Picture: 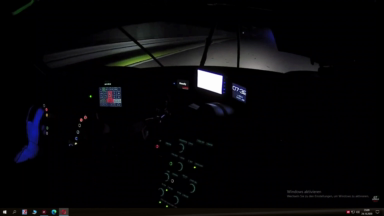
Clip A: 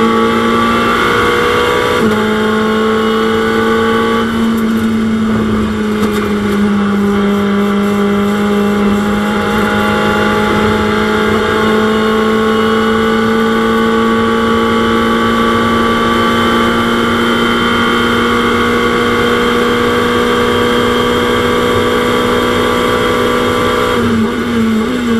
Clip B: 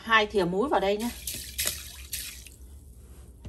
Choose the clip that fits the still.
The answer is A